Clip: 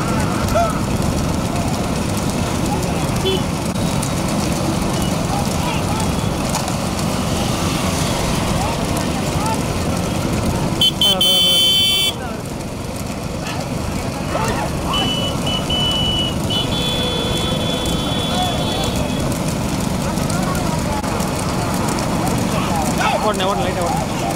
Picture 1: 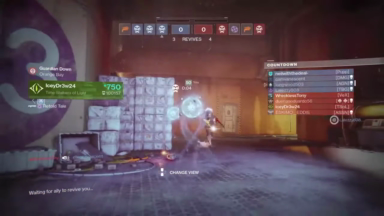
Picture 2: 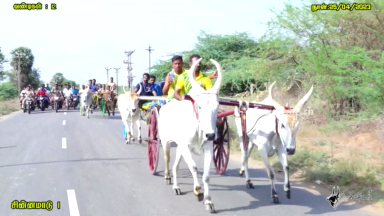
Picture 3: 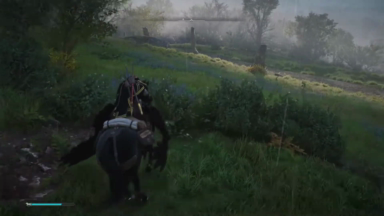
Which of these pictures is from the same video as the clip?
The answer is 2